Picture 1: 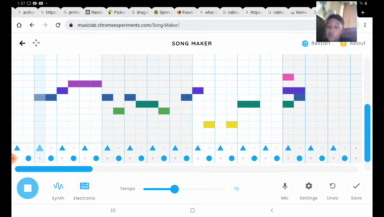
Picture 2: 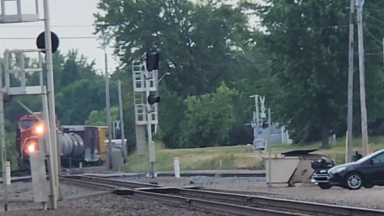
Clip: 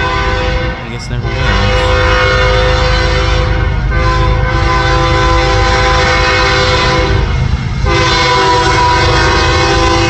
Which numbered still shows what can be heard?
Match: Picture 2